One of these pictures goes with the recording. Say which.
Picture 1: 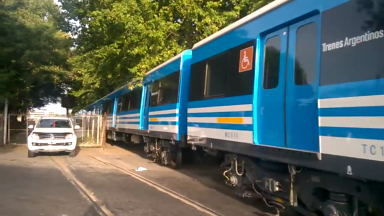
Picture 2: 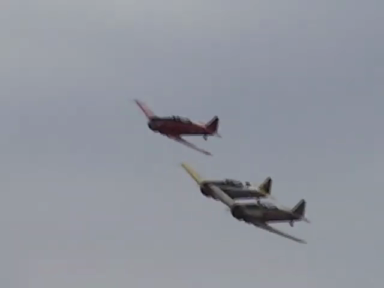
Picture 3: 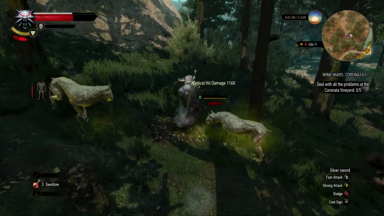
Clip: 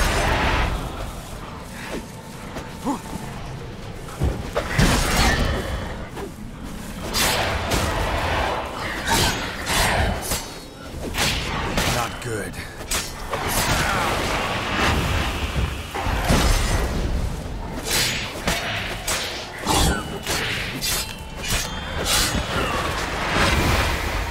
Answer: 3